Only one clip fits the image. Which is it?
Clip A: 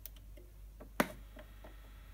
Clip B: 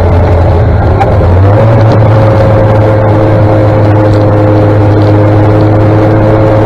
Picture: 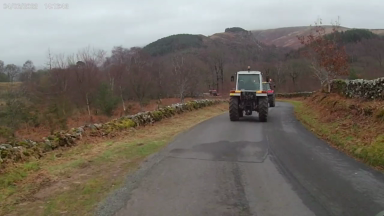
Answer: B